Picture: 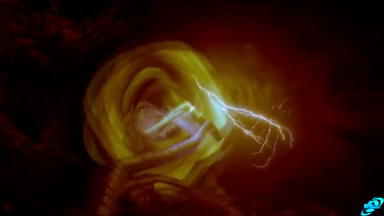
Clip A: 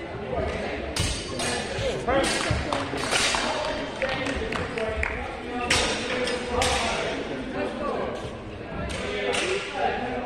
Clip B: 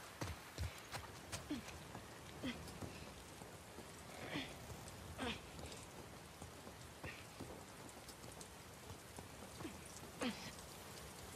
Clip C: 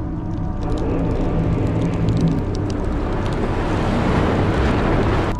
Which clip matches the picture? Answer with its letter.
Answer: C